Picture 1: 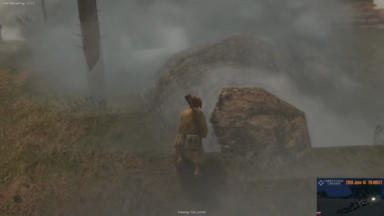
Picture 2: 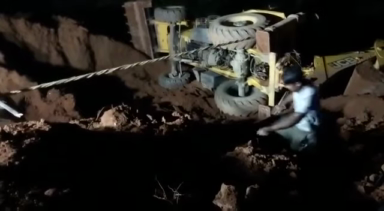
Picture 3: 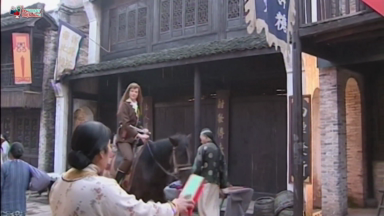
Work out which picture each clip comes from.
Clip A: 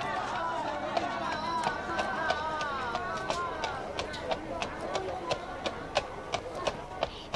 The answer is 3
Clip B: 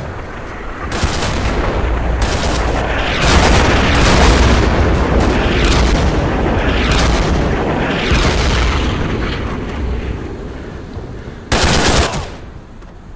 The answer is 1